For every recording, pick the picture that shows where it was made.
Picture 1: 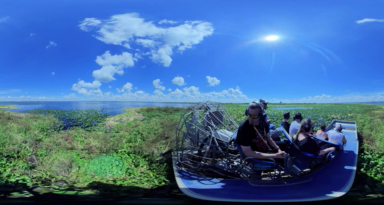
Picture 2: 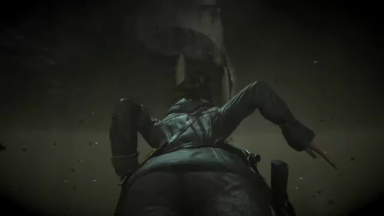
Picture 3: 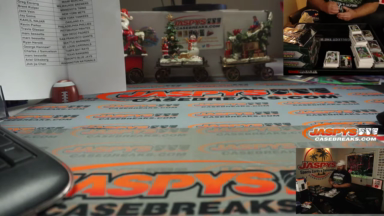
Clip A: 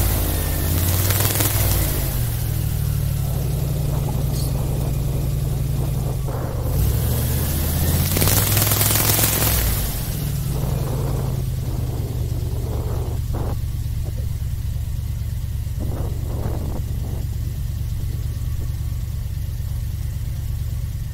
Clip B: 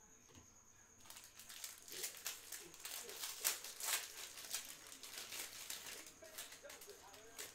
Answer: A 1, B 3